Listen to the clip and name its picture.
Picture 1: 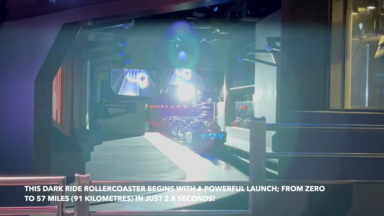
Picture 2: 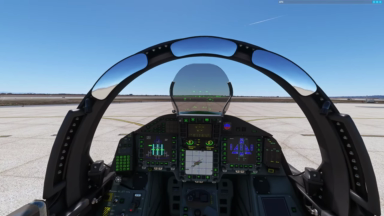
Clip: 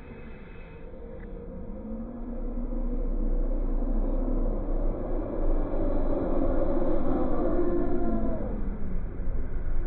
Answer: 1